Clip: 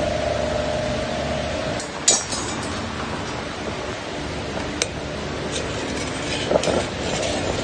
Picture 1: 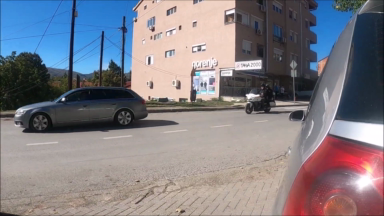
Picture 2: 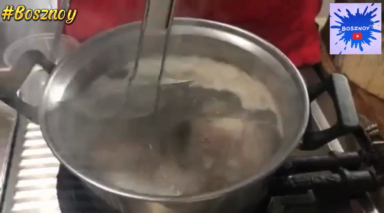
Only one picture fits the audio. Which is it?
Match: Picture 2